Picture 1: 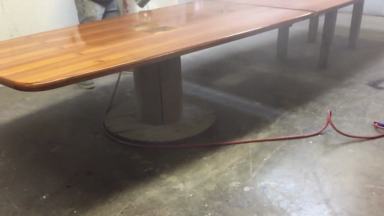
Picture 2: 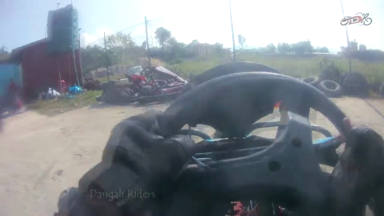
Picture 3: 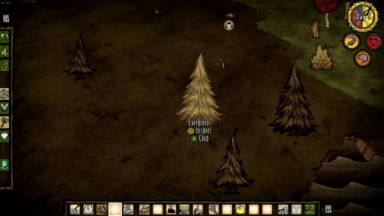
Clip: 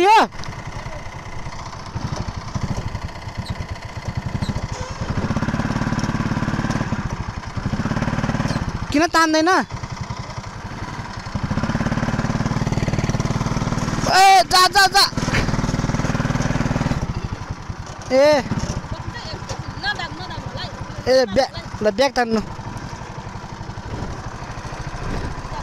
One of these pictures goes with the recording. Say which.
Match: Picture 2